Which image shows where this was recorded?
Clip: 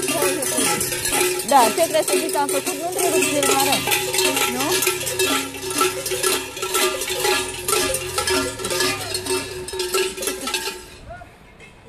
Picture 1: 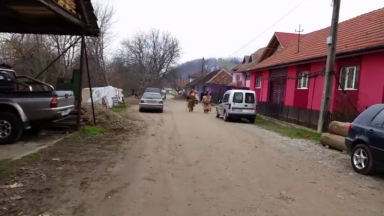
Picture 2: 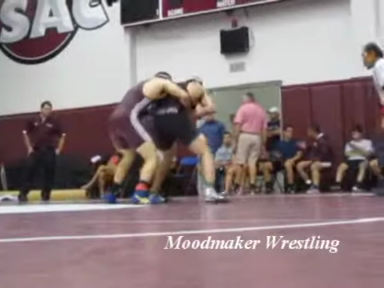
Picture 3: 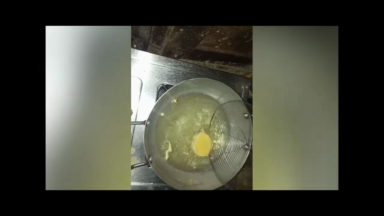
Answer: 1